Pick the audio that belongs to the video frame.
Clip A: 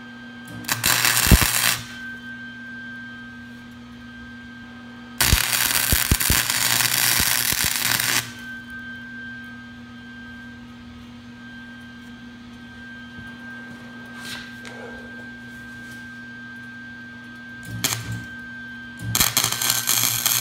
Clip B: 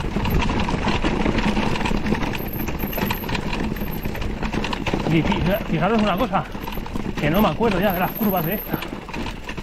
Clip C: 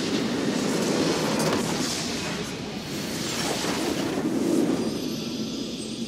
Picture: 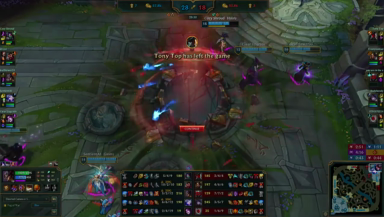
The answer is C